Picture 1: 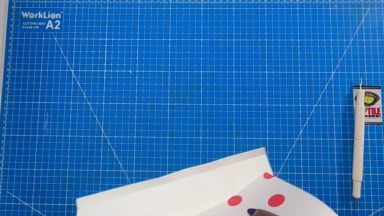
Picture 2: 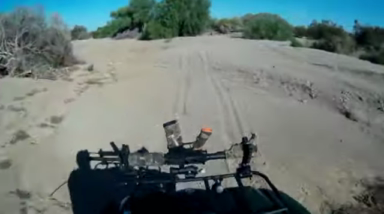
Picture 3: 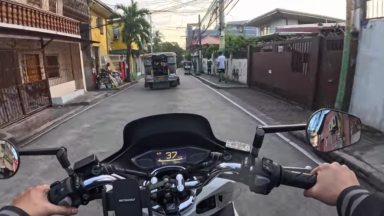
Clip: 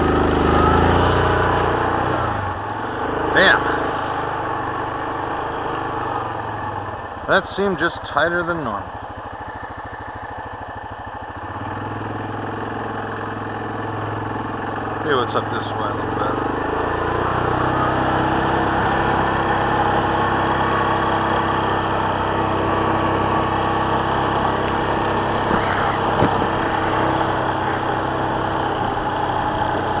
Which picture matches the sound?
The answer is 2